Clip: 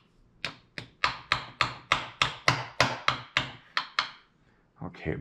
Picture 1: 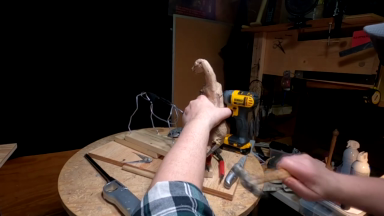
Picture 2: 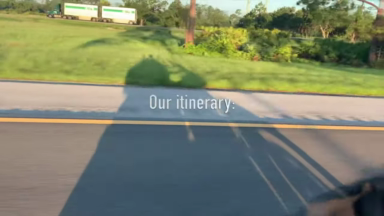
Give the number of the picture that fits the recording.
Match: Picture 1